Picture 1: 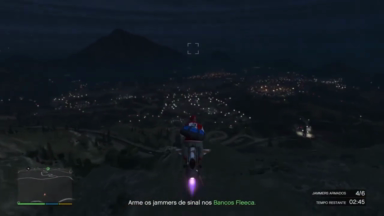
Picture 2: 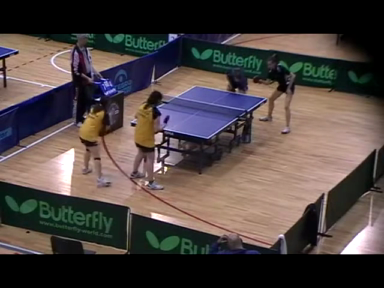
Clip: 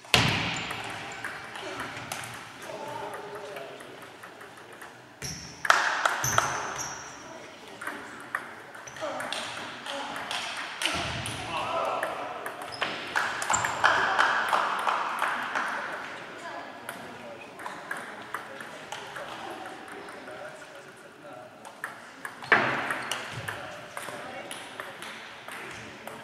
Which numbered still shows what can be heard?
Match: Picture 2